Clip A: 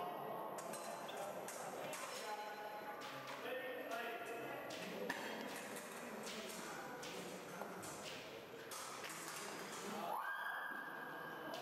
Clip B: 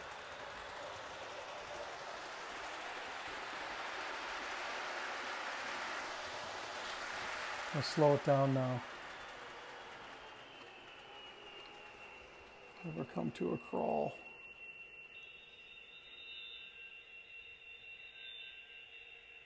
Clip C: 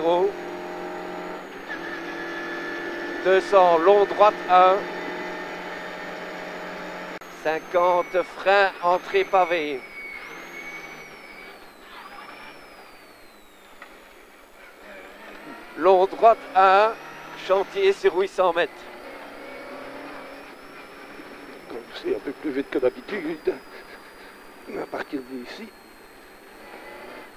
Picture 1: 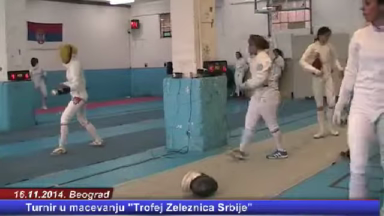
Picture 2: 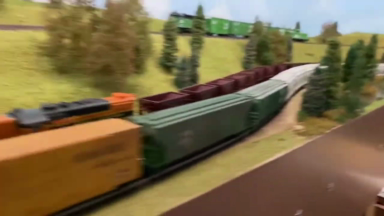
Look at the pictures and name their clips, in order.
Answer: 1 A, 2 B